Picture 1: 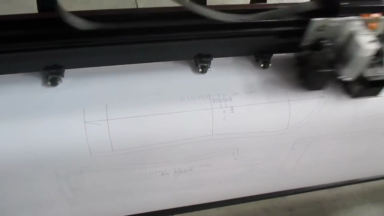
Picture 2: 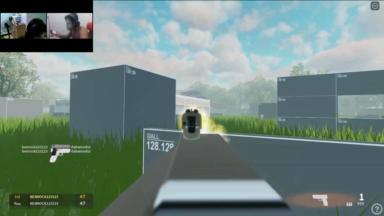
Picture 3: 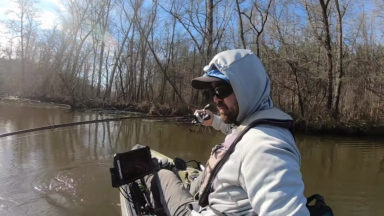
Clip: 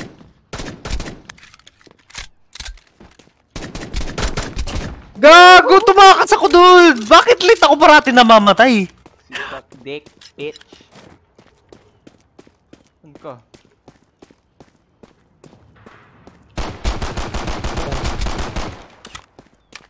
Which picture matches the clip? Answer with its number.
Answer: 2